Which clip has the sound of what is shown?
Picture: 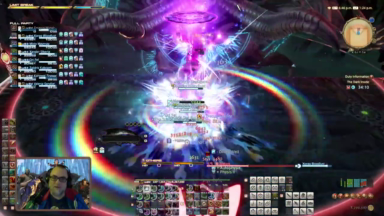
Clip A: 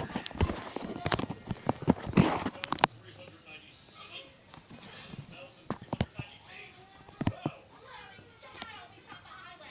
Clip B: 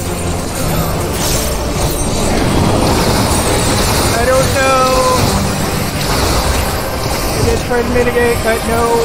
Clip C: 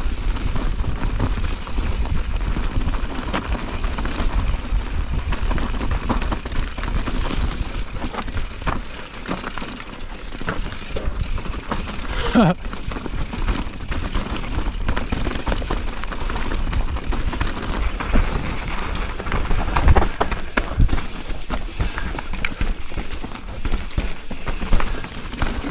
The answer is B